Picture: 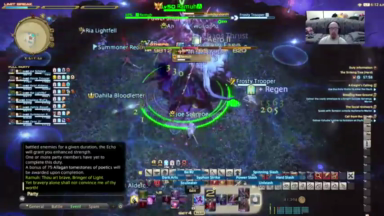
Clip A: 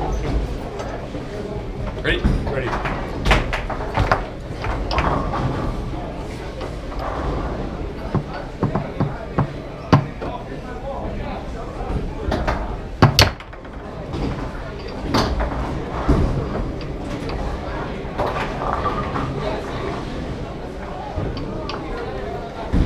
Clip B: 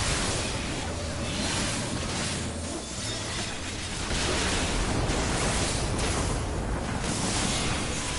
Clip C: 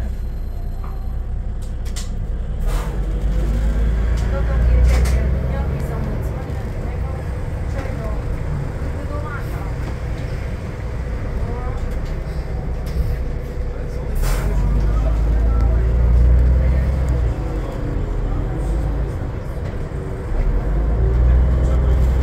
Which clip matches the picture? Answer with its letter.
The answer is B